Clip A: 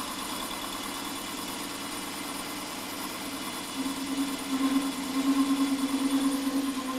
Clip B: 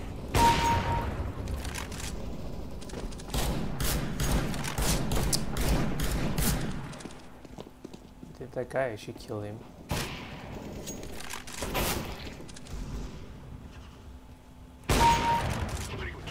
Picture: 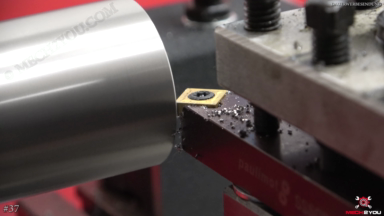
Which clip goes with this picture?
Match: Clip A